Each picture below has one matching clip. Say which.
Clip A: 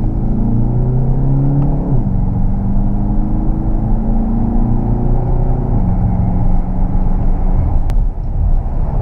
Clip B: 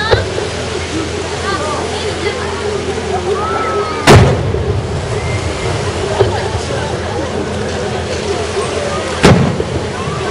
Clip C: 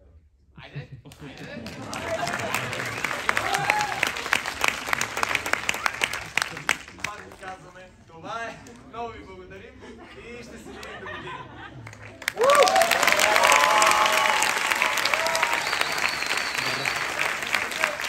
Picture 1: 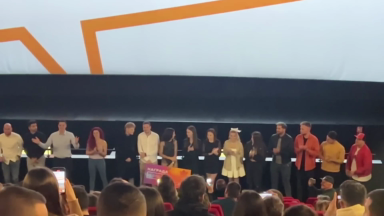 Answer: C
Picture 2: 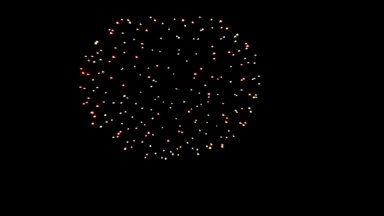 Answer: B